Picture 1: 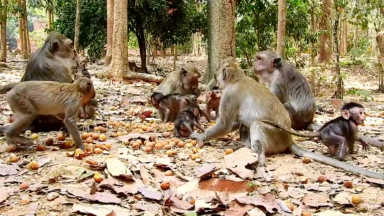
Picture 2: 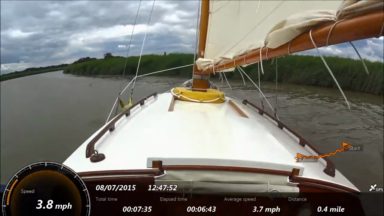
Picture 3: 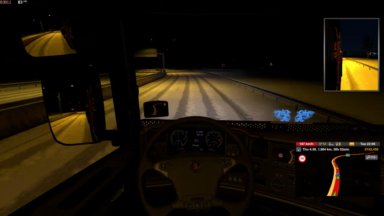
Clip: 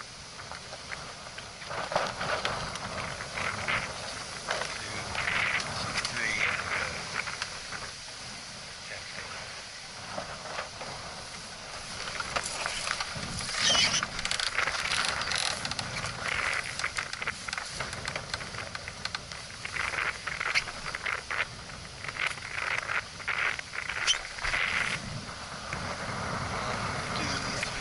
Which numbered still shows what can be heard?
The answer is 2